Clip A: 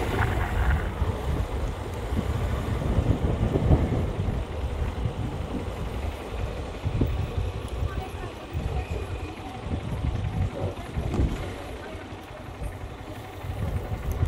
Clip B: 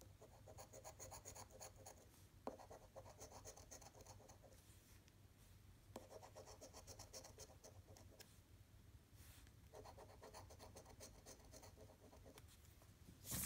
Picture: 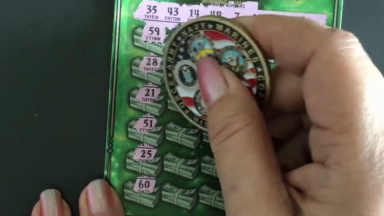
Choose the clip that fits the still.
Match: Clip B